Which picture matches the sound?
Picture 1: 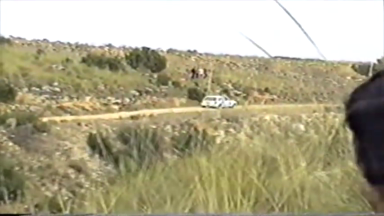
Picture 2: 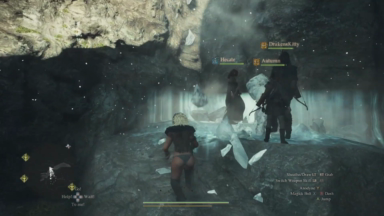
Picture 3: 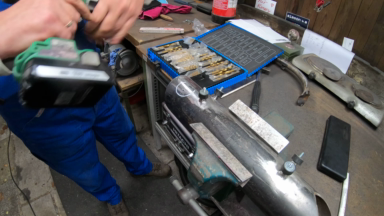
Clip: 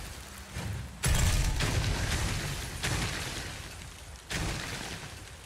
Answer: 2